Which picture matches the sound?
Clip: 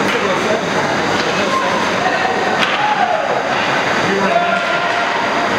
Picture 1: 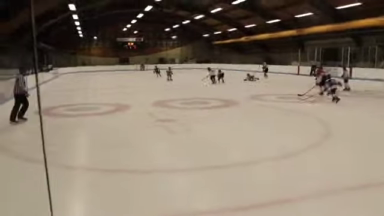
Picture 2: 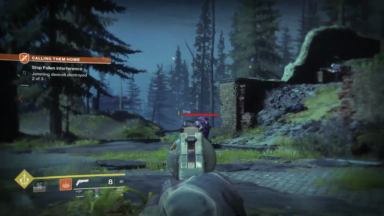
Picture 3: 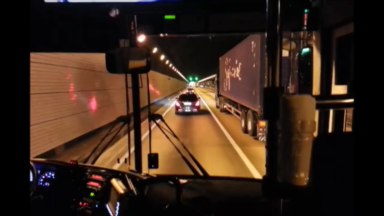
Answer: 1